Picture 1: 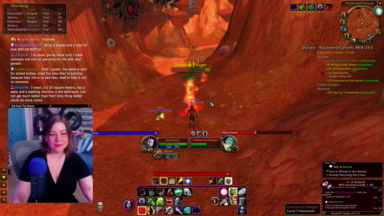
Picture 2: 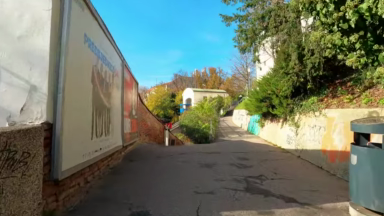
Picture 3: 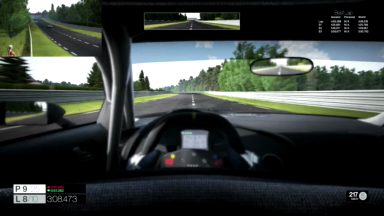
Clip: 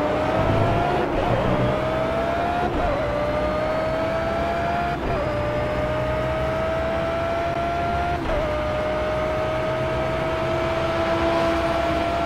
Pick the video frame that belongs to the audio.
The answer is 3